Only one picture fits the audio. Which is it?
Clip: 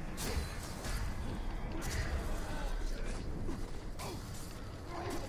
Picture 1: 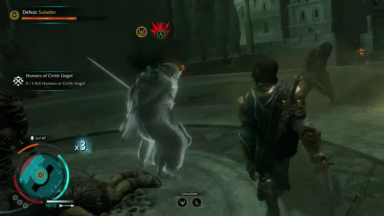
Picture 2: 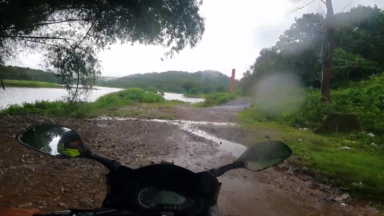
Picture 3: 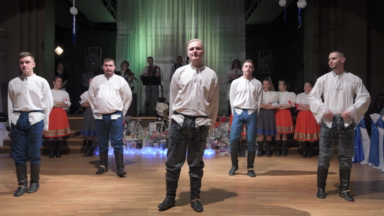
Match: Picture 1